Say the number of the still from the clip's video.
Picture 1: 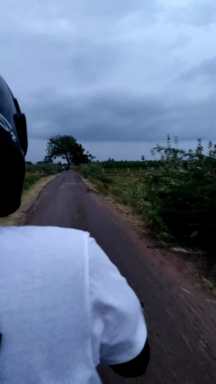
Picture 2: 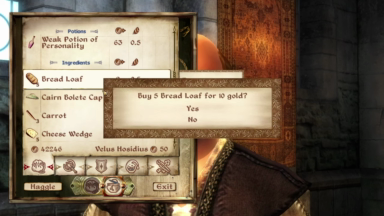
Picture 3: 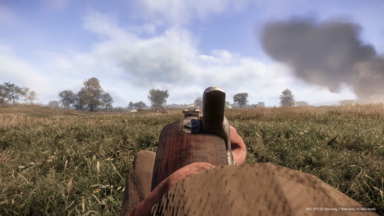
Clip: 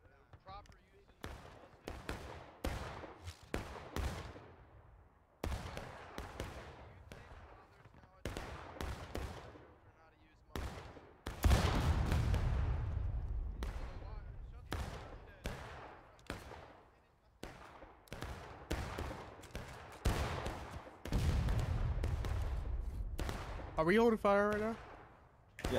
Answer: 3